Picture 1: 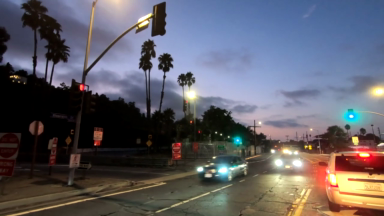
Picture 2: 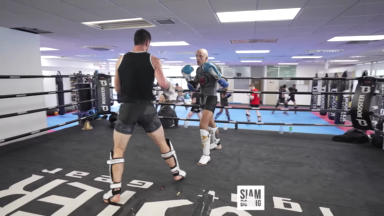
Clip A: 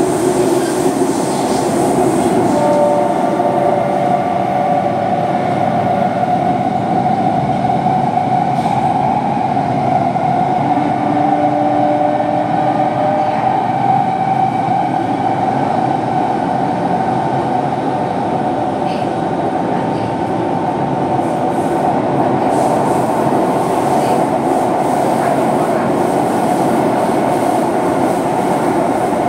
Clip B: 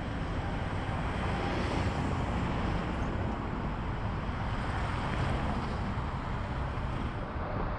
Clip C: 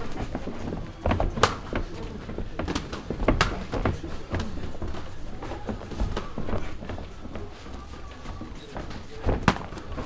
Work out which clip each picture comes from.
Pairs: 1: B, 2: C